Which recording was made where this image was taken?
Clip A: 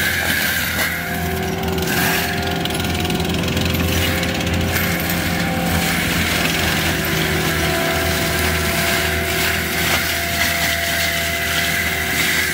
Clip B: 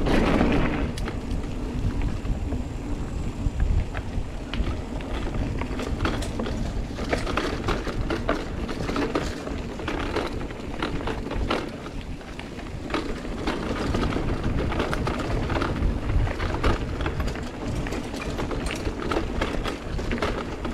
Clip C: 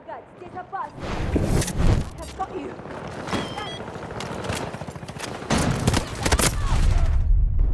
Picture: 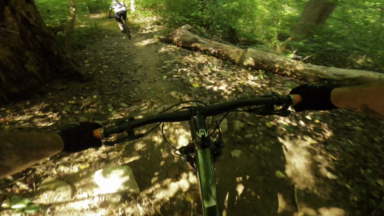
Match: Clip B